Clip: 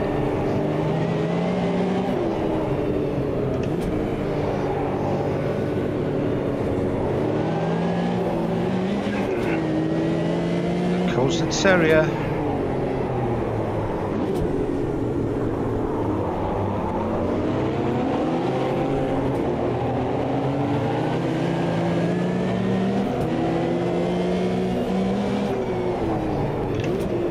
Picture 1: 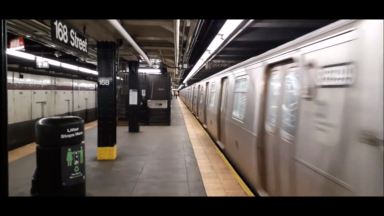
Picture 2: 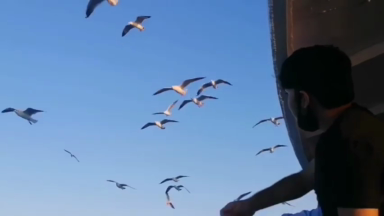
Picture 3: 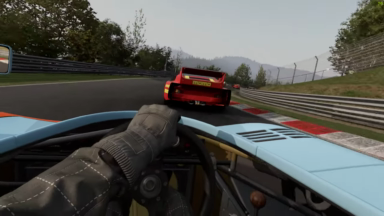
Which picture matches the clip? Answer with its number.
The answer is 3